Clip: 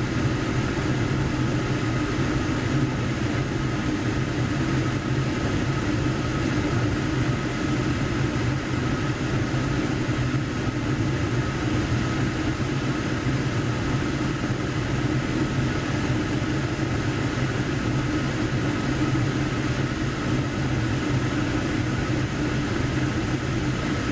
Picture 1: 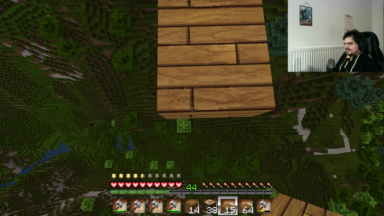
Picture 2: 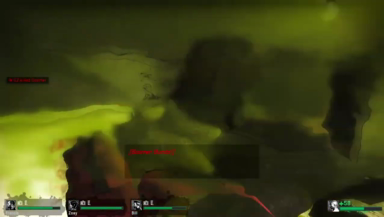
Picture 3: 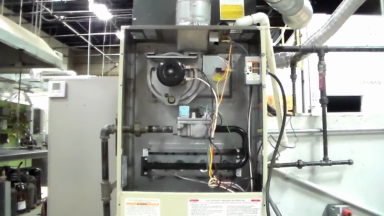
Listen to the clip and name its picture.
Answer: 3